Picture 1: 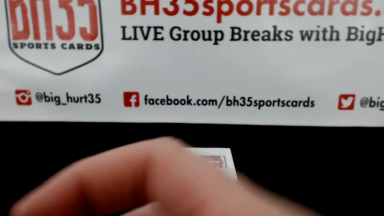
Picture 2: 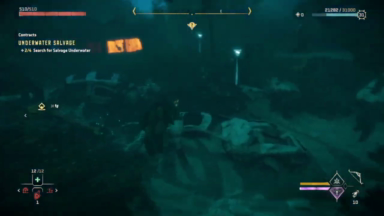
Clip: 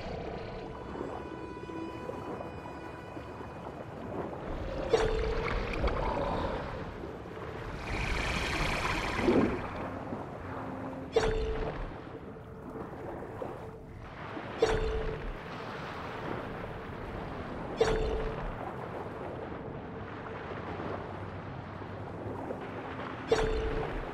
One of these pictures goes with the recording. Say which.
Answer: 2